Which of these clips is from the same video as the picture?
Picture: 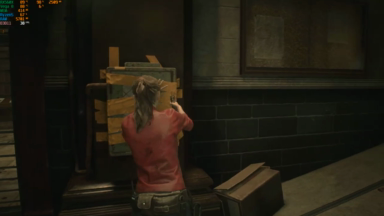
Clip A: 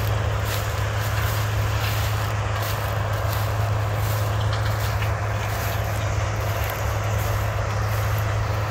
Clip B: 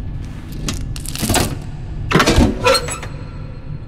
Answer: B